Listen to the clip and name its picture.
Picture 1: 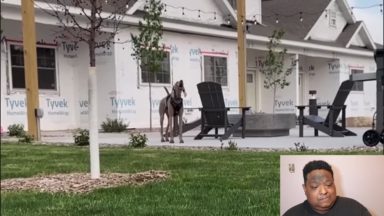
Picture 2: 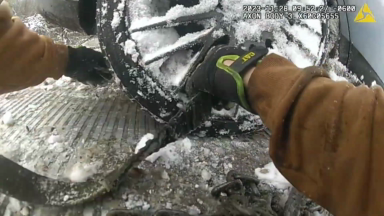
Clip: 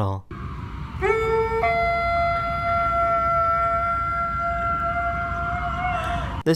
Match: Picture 1